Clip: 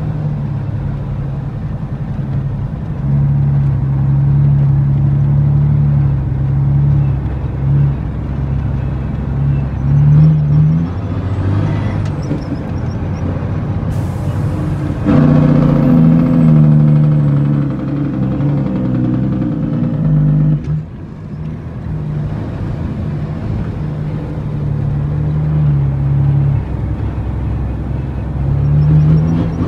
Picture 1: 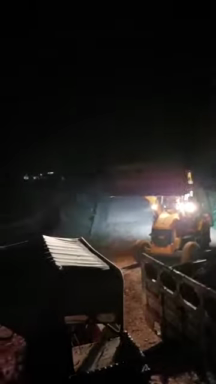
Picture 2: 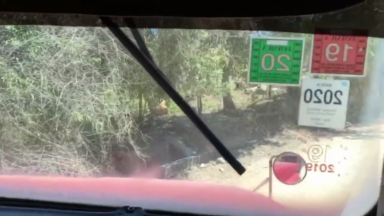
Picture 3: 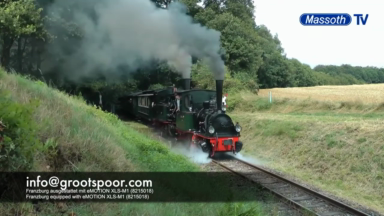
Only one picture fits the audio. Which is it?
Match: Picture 2